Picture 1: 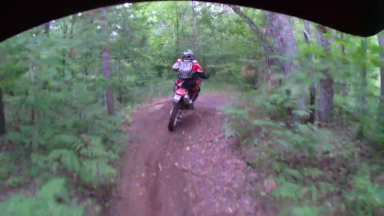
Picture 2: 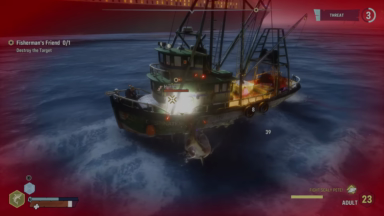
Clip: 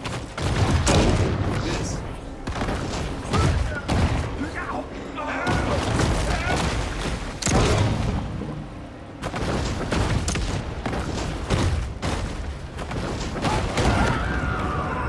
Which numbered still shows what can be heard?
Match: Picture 2